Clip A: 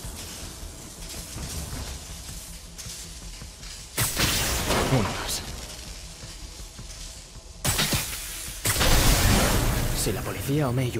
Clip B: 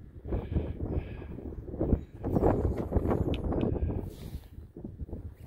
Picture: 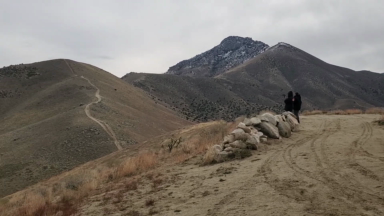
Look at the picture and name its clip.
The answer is B